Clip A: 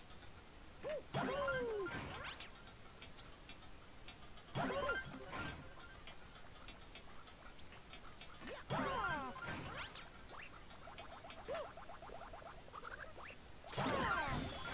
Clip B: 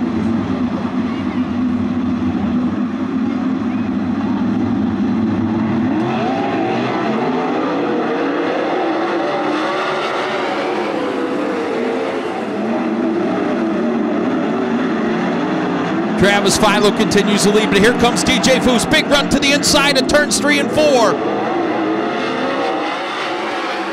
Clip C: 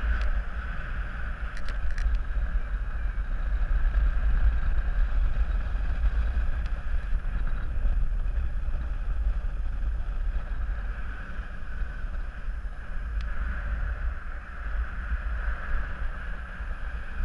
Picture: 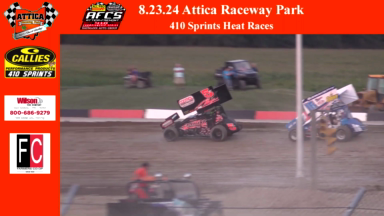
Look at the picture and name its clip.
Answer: B